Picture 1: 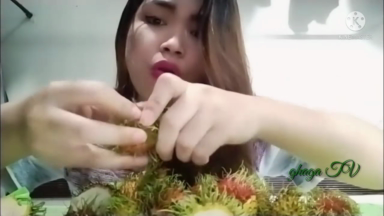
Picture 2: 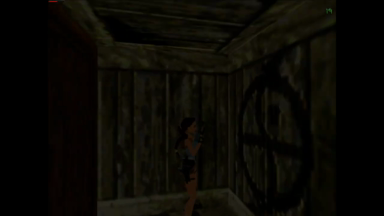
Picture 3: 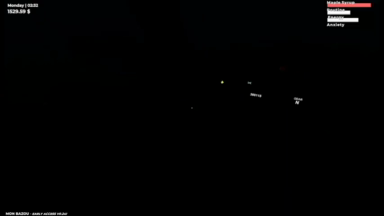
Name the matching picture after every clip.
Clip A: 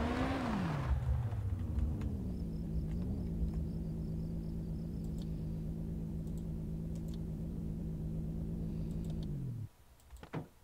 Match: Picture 3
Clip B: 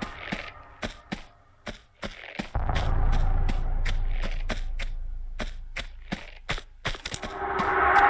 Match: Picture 2